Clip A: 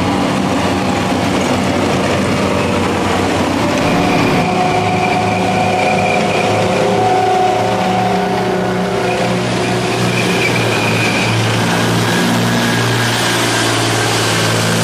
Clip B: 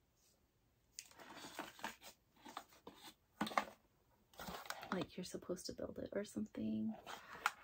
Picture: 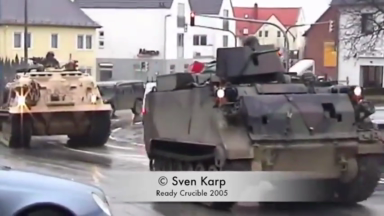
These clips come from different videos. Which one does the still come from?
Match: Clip A